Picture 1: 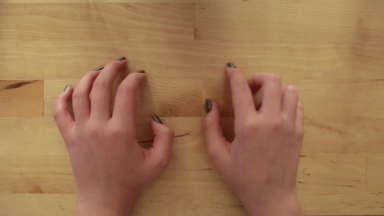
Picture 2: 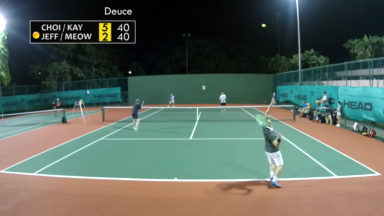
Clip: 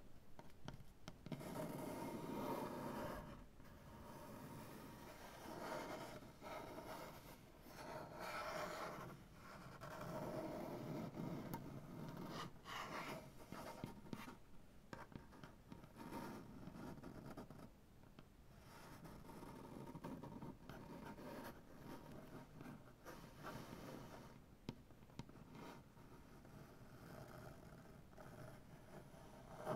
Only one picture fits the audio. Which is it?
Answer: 1